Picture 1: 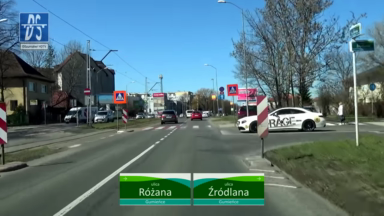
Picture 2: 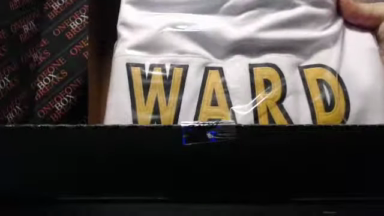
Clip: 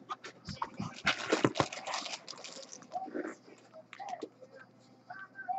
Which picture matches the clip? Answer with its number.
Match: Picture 2